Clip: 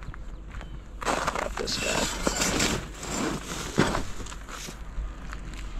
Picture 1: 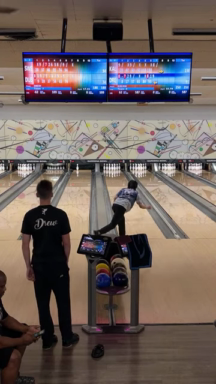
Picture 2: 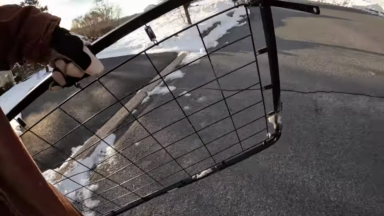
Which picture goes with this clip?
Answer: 2